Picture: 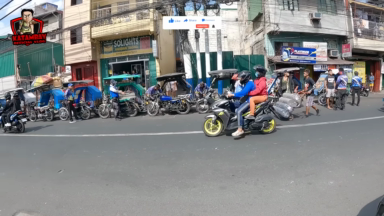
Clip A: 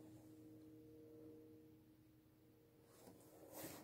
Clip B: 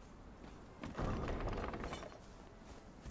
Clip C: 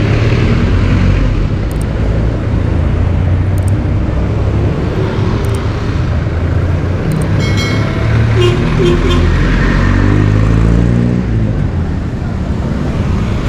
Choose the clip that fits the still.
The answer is C